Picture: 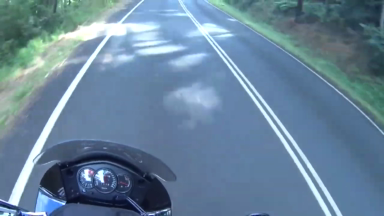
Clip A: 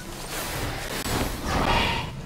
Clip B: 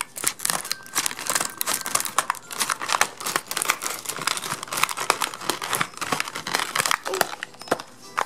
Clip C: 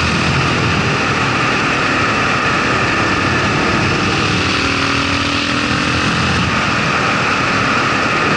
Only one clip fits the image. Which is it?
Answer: C